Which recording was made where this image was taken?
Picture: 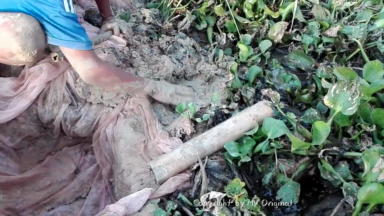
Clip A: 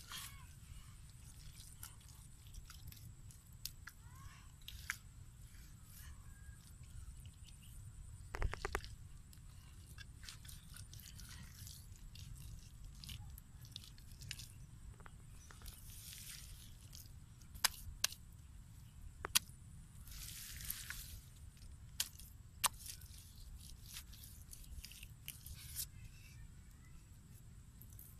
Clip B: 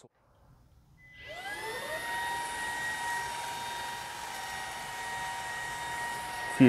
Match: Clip A